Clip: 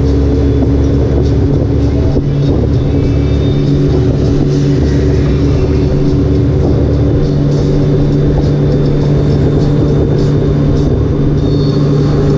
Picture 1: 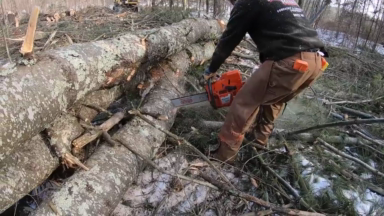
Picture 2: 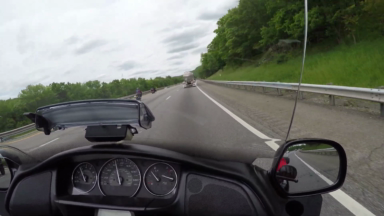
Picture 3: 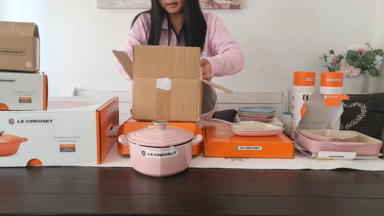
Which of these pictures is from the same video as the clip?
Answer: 2